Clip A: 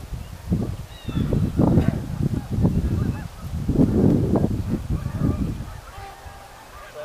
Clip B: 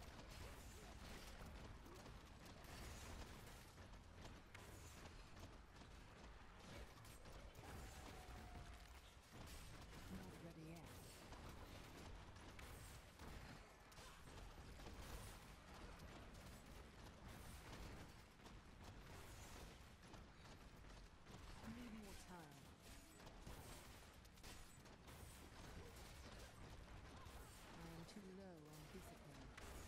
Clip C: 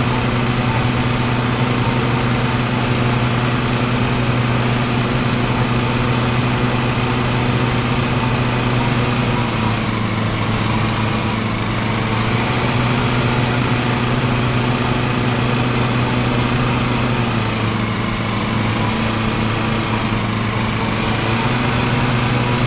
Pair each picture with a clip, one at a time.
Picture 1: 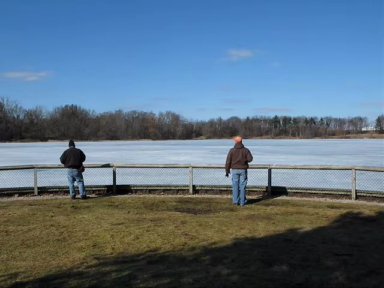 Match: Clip A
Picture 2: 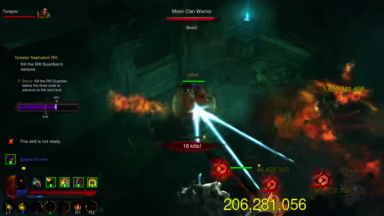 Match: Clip B